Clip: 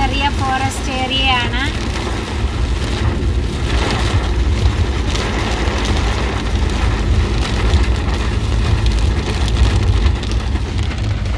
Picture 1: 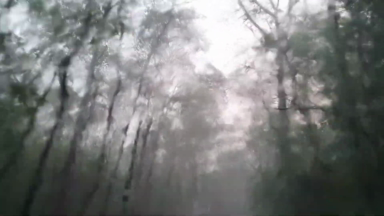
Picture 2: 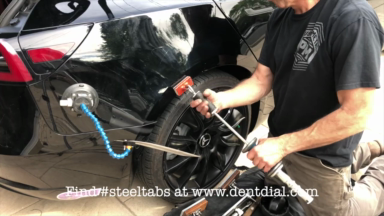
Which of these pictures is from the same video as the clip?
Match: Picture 1